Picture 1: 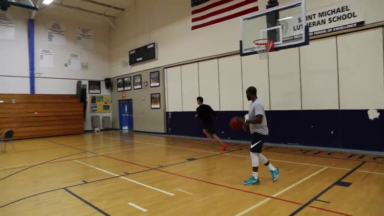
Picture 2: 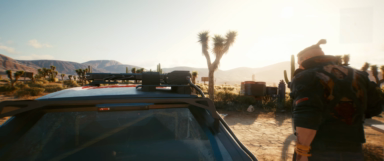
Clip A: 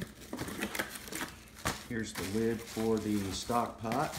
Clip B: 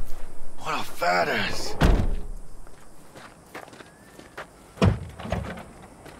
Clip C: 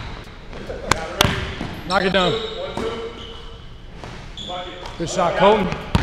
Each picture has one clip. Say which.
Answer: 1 C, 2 B